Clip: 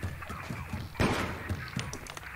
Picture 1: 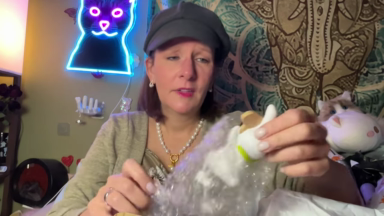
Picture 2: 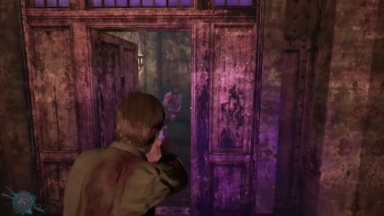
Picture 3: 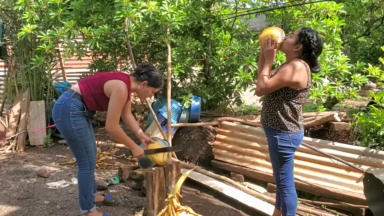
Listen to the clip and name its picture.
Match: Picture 2